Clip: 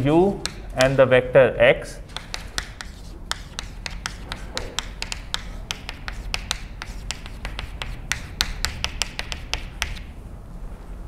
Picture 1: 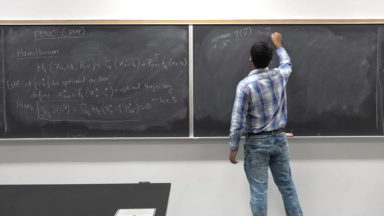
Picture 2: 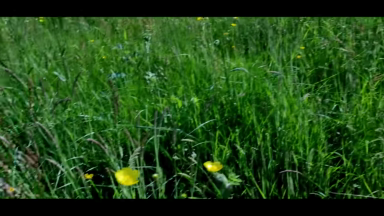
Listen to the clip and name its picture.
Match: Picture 1